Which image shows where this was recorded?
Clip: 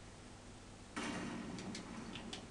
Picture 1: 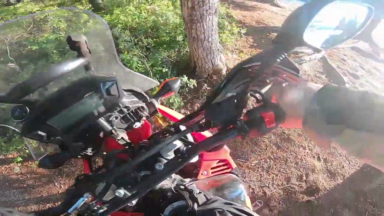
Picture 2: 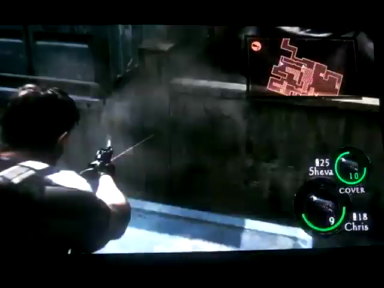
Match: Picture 2